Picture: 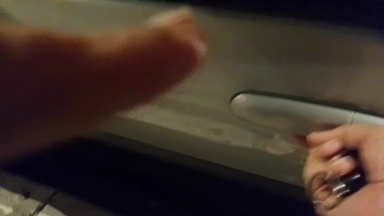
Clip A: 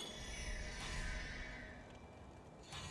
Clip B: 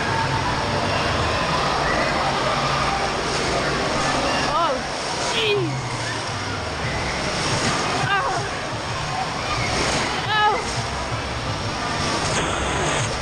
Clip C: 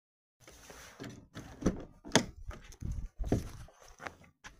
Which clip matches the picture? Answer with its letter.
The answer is C